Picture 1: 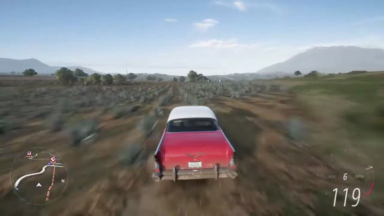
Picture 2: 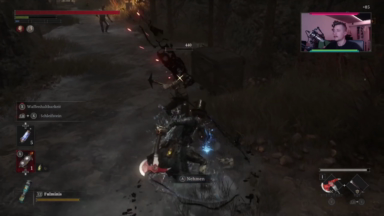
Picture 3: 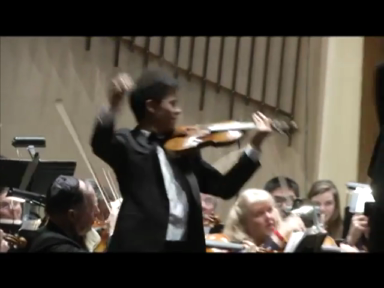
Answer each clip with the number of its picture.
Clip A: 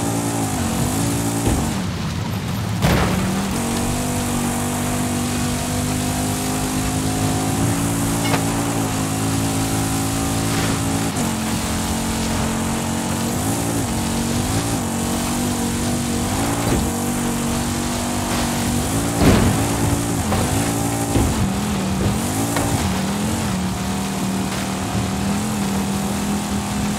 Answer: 1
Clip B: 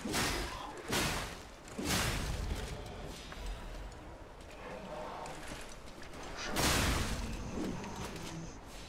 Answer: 2